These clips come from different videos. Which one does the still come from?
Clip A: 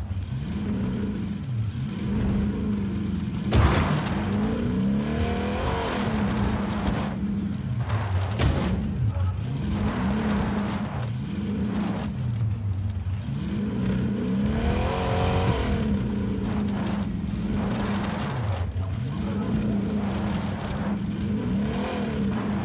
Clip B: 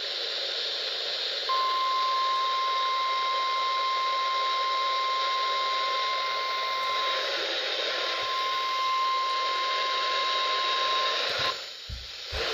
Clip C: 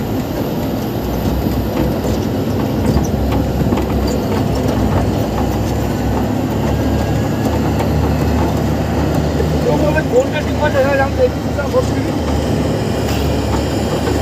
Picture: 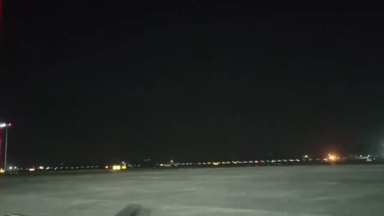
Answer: C